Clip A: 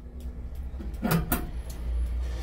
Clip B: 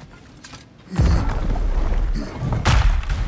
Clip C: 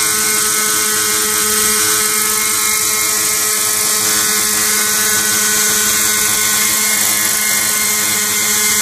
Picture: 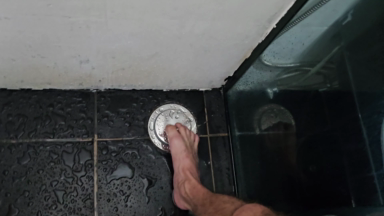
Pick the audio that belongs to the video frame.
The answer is A